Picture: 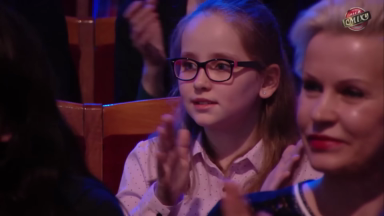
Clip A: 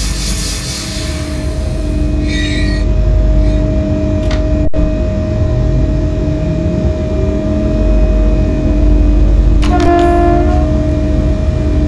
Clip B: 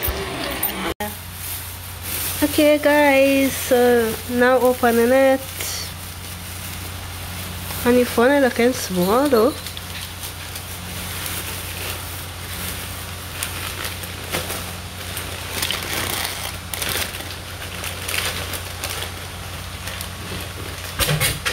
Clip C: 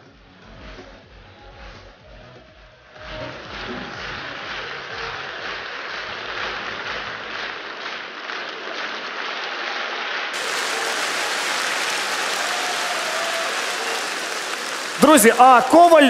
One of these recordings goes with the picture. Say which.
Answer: C